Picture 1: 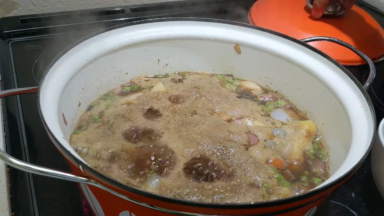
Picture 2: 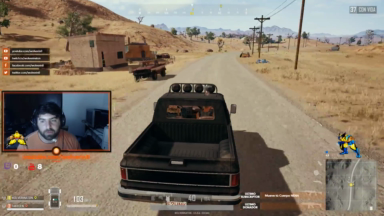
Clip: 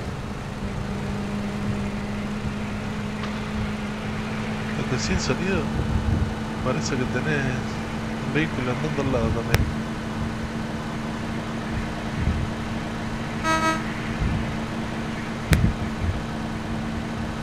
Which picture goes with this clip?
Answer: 2